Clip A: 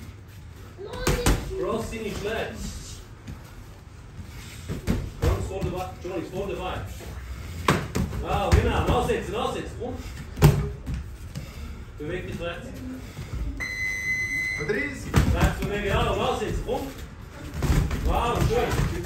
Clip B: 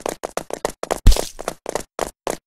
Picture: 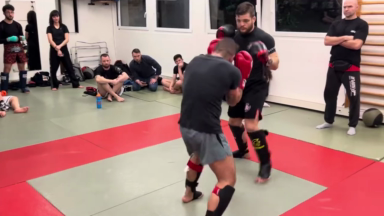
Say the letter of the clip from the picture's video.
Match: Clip A